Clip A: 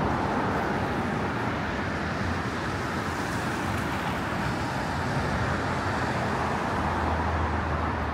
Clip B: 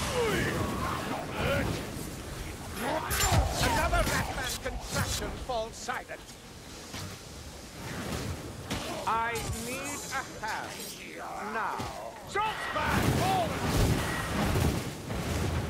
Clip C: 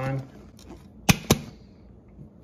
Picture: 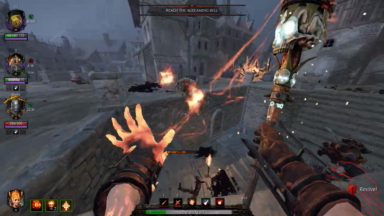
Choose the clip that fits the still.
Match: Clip B